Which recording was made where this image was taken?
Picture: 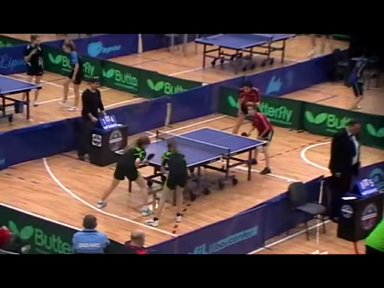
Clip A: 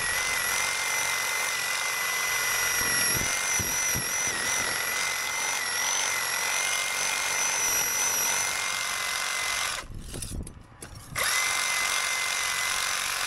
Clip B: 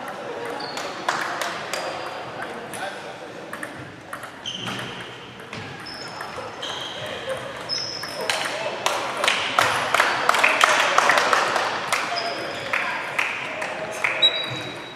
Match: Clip B